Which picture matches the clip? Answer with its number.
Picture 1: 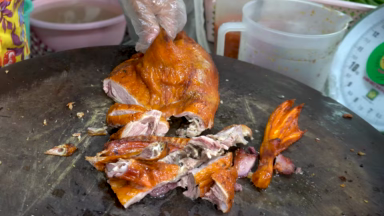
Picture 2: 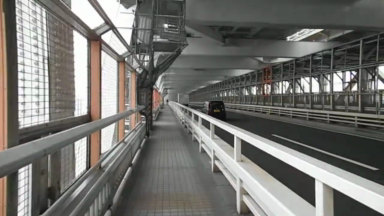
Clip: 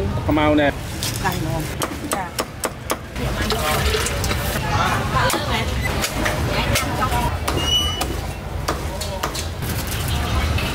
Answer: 1